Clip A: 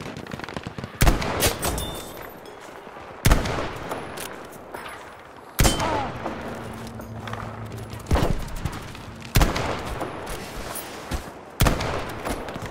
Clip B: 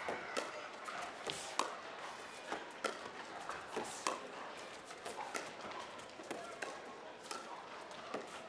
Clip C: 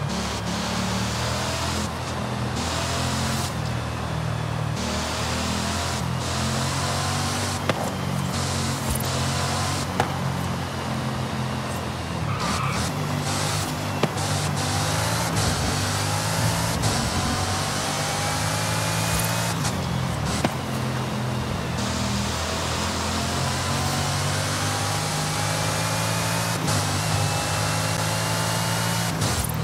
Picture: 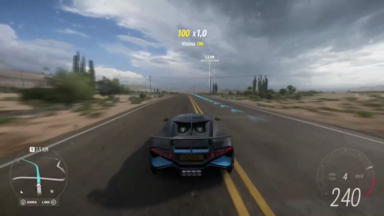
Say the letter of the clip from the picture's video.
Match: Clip C